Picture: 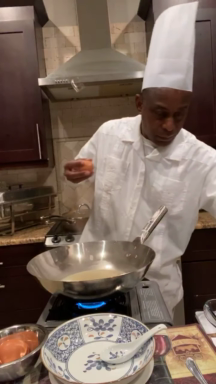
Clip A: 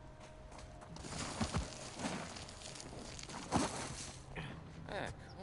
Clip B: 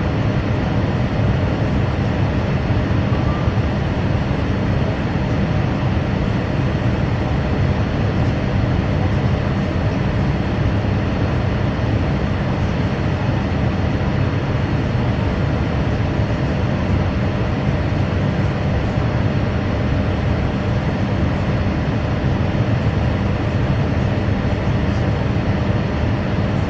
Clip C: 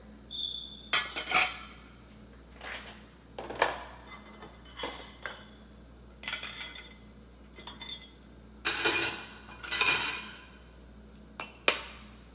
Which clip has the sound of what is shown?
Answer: C